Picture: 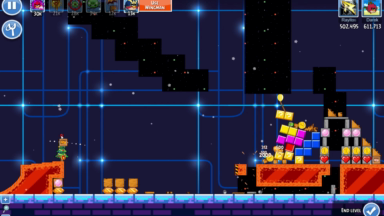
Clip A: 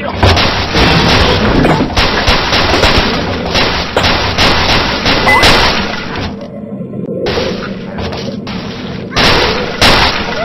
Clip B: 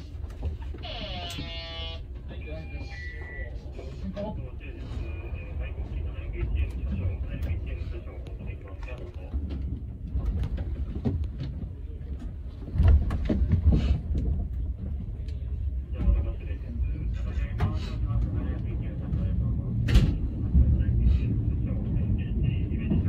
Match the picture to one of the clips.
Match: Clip A